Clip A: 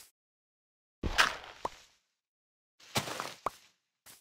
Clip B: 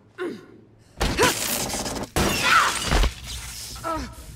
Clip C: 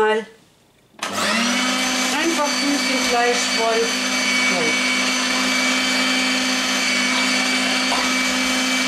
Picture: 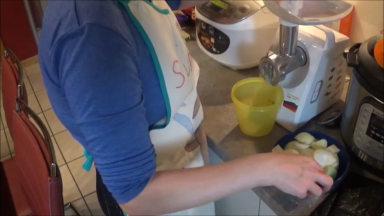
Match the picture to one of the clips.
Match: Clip C